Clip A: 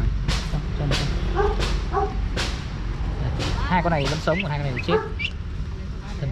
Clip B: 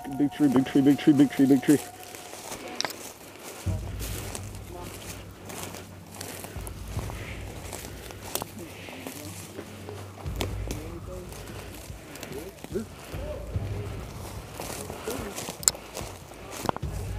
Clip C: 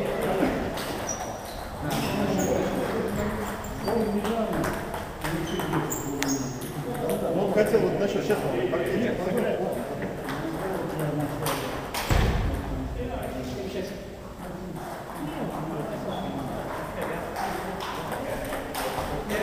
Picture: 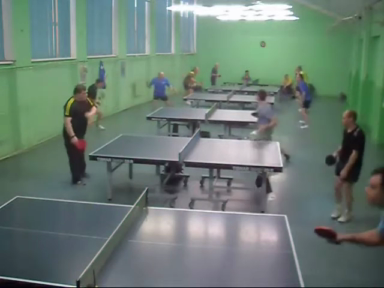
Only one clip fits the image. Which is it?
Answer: C